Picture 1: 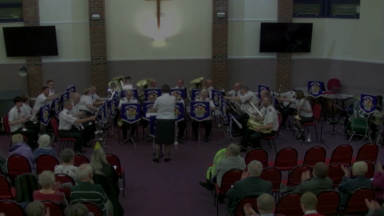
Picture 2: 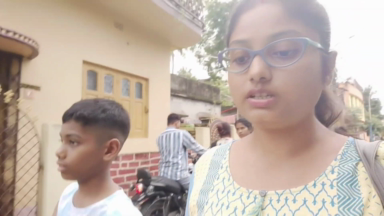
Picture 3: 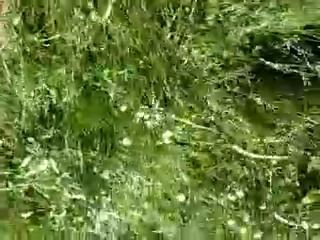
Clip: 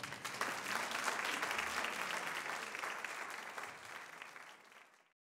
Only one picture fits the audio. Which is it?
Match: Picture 1